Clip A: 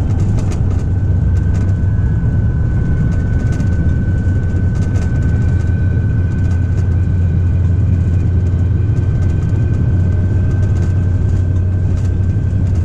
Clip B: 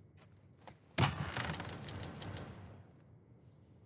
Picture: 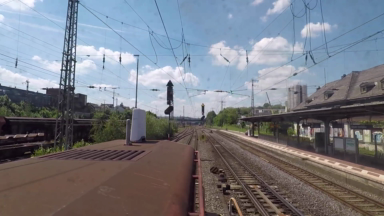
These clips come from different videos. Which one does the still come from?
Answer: A